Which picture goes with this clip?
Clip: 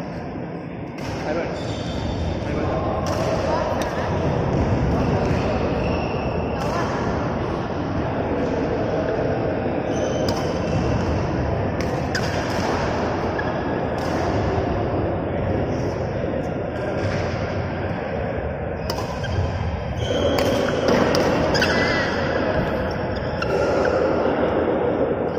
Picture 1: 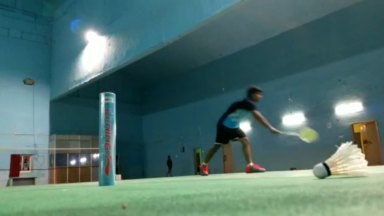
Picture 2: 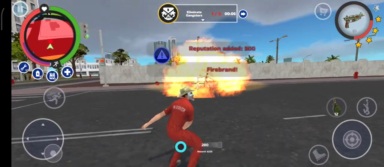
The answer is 1